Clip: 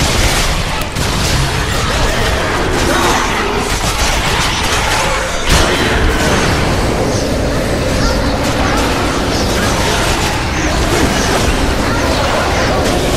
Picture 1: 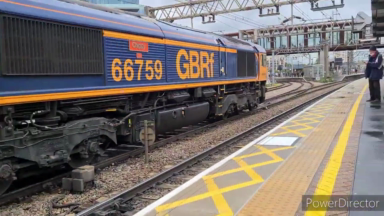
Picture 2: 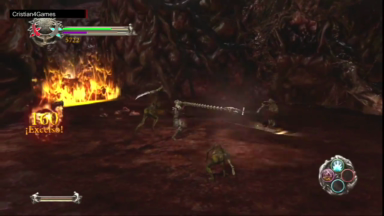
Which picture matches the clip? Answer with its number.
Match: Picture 2